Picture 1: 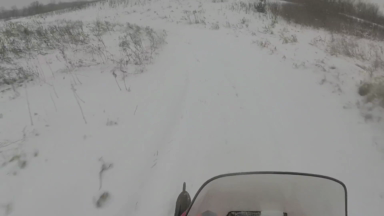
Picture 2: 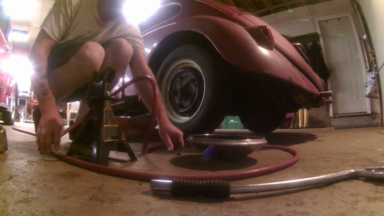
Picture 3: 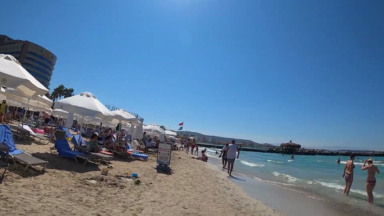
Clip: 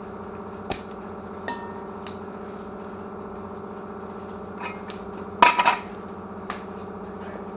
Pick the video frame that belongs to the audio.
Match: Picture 2